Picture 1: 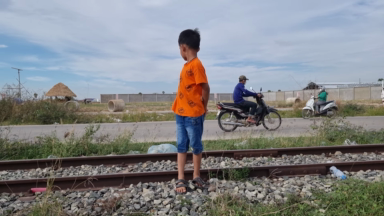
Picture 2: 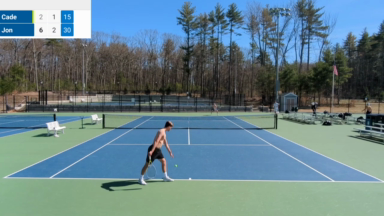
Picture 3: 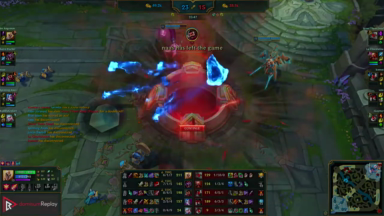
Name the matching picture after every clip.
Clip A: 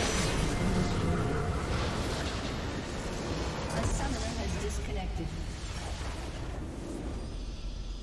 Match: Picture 3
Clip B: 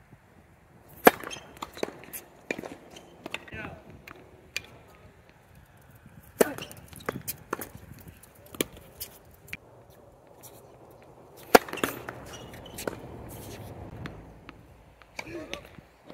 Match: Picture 2